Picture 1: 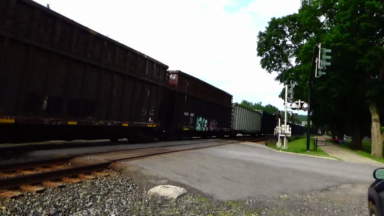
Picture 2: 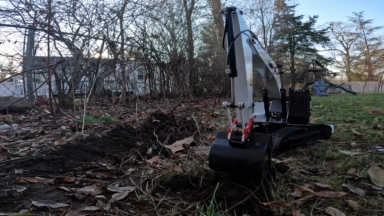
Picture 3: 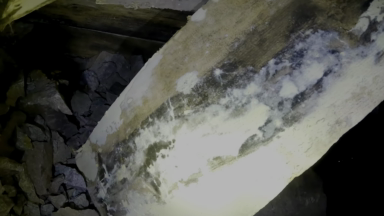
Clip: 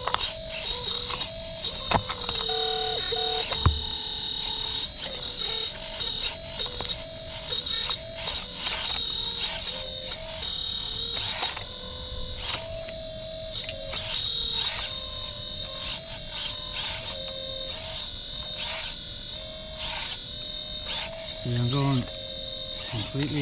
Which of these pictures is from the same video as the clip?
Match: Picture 2